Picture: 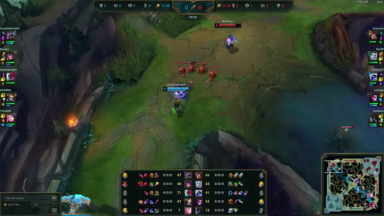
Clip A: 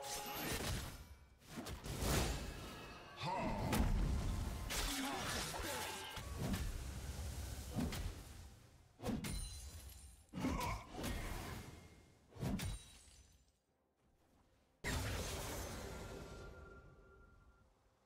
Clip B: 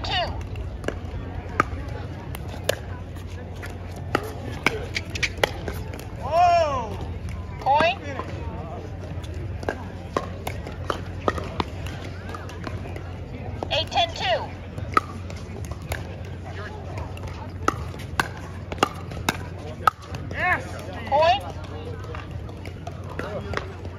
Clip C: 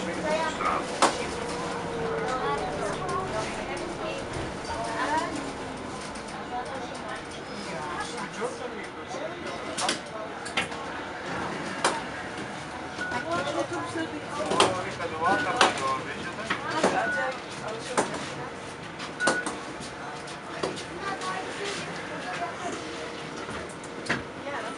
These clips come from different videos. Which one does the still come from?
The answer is A